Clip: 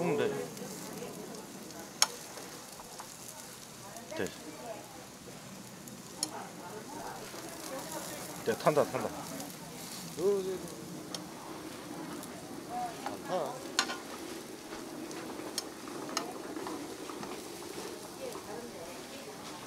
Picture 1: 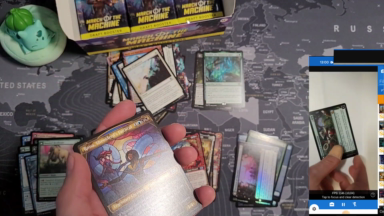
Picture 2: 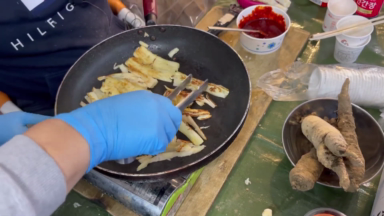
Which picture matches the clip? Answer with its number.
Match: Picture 2